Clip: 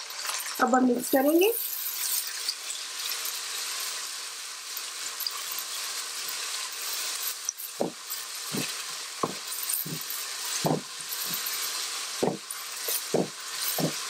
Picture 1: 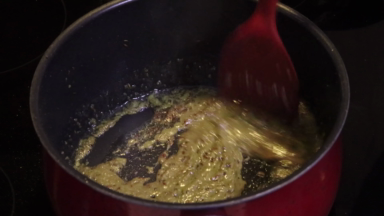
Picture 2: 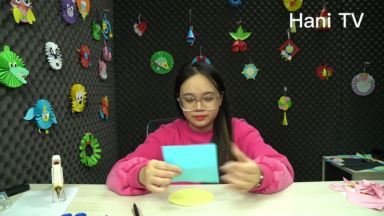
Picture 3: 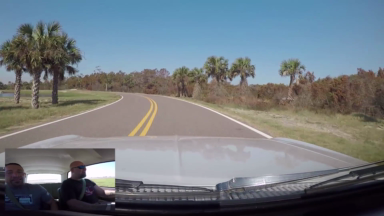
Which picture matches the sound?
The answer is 1